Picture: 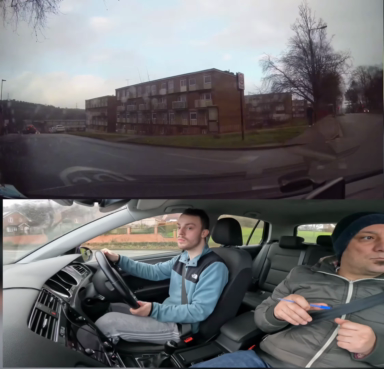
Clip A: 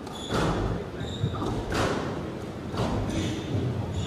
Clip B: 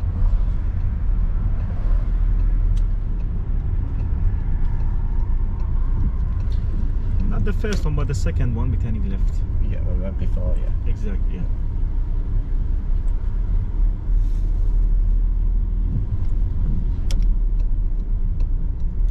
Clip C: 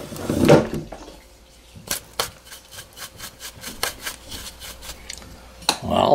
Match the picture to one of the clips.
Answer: B